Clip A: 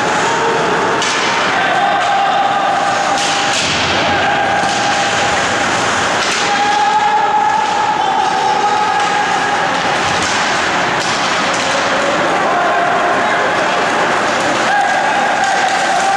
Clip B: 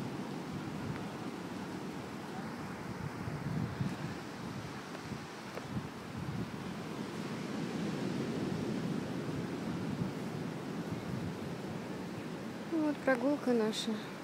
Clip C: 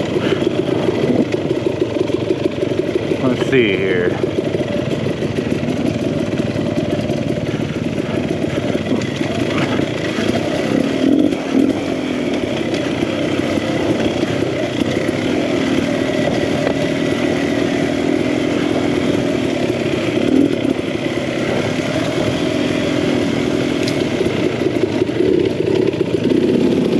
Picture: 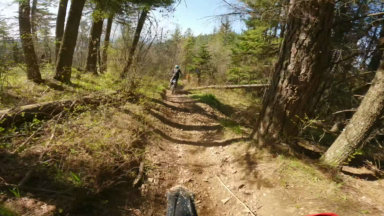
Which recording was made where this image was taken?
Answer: C